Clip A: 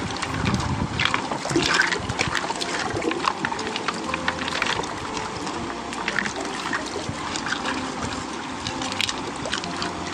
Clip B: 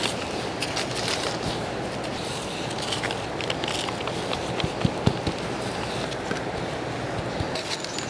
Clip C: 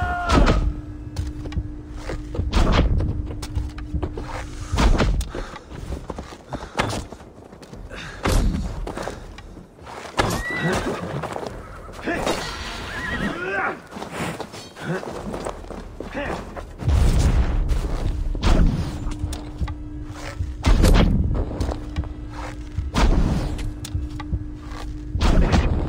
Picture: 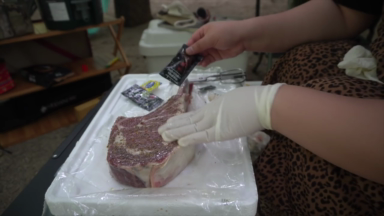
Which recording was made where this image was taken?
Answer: B